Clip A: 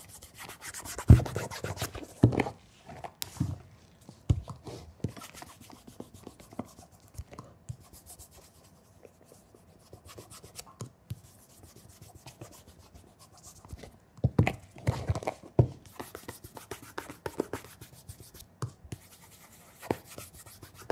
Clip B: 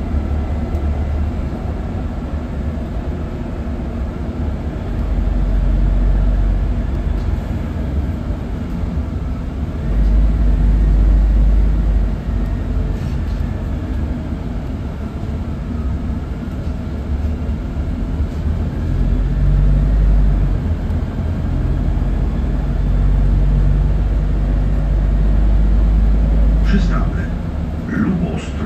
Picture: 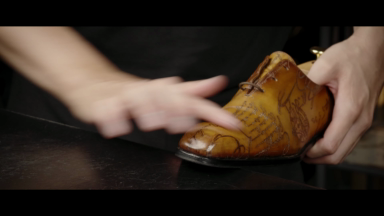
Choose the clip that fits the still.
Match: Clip A